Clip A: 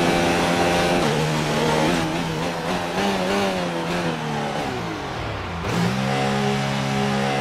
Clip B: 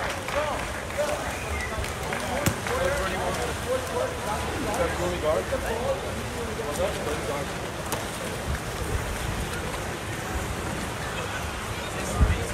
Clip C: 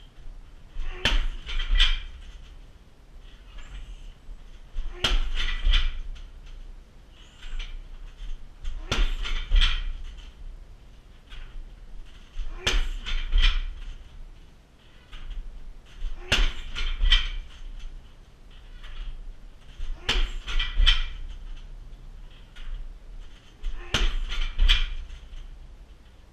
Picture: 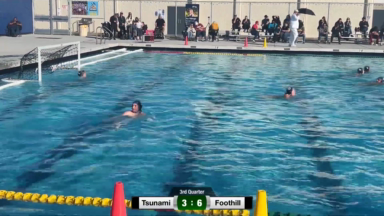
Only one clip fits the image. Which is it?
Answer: B